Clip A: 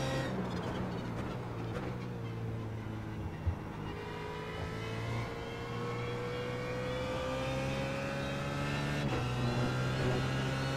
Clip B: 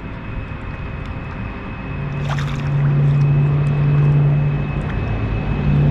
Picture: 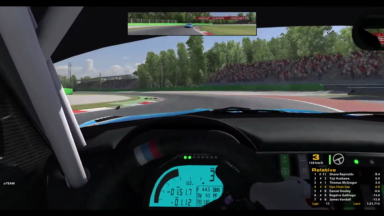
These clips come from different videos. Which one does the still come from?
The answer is A